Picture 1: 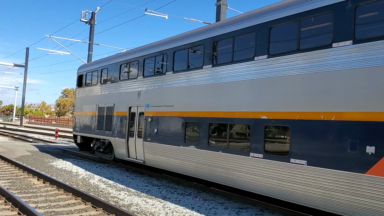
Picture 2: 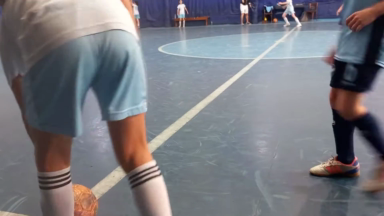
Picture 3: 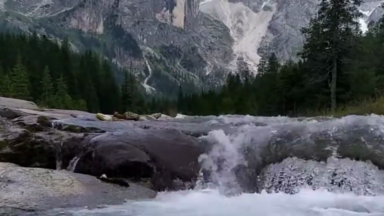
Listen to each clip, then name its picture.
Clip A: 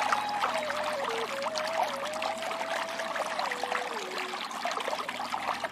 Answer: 3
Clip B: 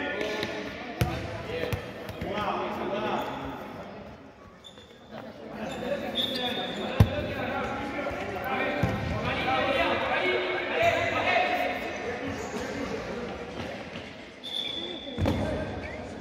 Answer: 2